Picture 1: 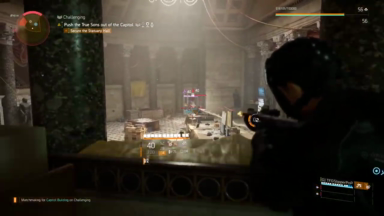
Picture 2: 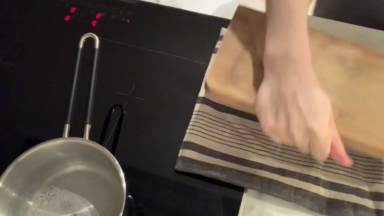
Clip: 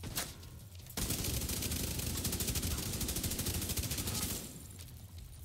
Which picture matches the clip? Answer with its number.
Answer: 1